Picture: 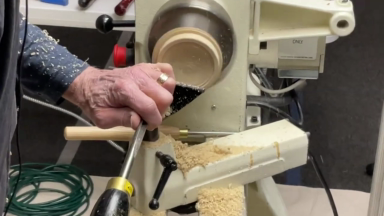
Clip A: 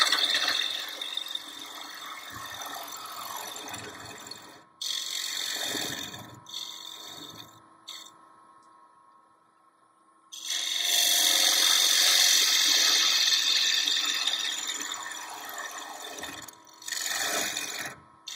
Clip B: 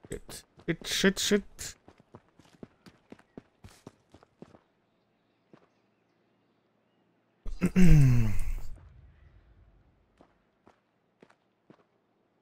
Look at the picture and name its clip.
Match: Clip A